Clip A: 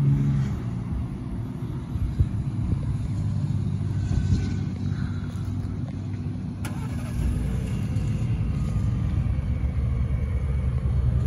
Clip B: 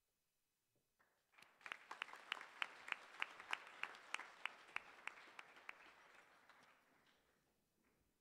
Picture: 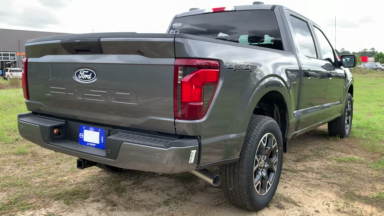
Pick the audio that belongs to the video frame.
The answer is A